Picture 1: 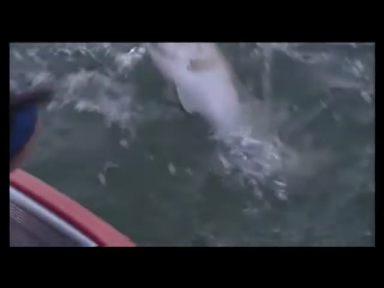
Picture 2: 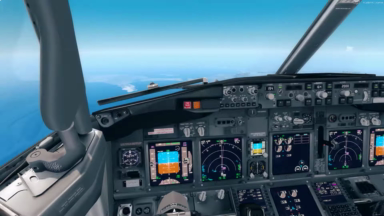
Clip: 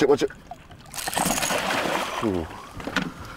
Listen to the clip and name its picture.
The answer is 1